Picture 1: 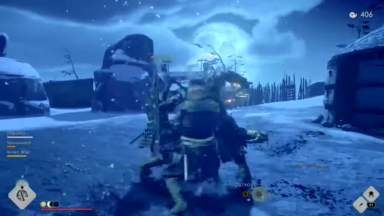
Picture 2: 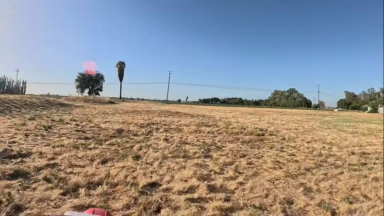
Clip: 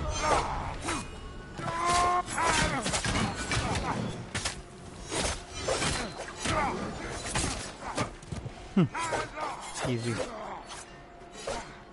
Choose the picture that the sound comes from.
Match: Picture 1